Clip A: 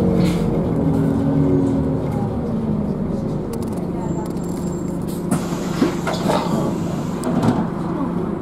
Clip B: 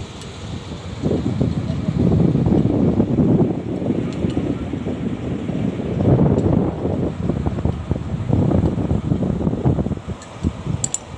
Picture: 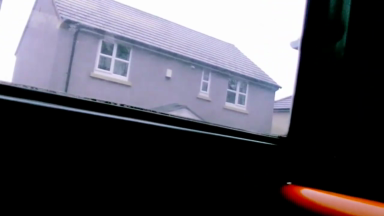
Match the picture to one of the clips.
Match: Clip A